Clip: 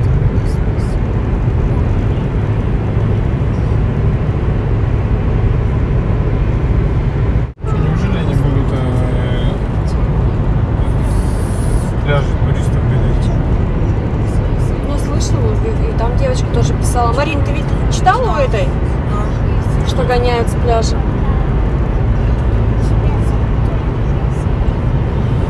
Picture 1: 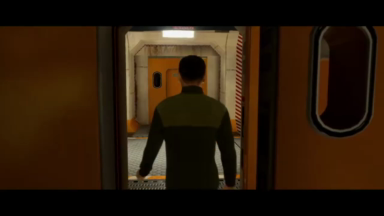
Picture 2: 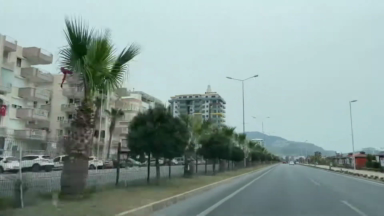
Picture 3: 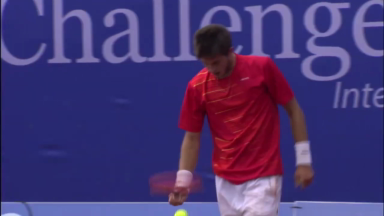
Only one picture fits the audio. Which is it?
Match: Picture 2